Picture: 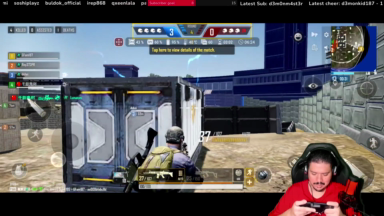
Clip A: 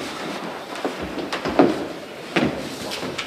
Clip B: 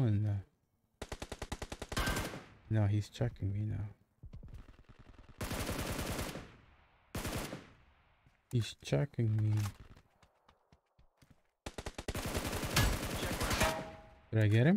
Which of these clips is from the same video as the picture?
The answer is B